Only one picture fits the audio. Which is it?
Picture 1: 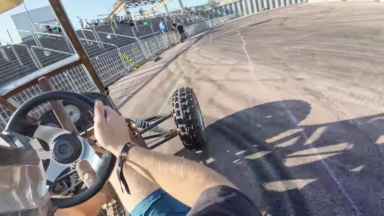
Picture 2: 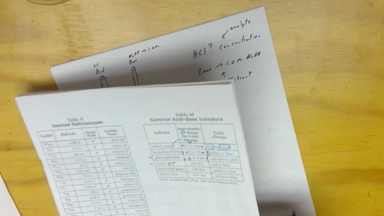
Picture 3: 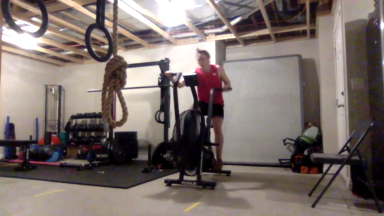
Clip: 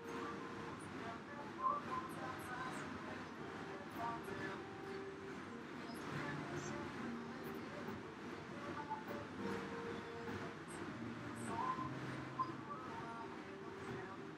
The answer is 3